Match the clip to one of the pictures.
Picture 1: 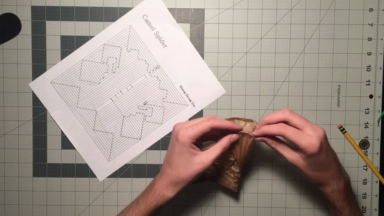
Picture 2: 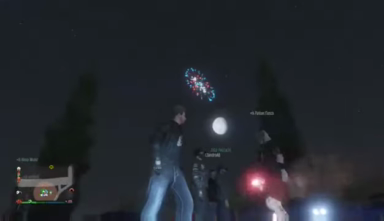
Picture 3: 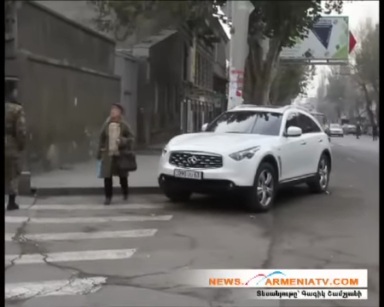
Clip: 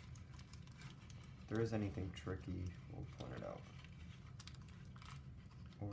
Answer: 1